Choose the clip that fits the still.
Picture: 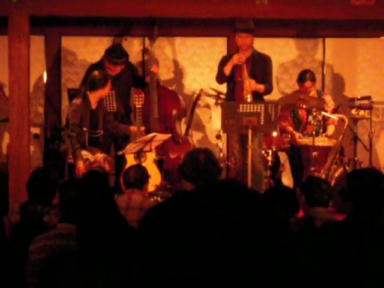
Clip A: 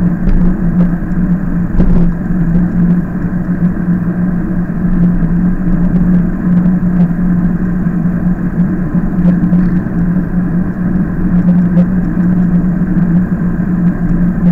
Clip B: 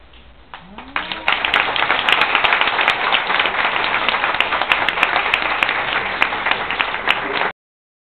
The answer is B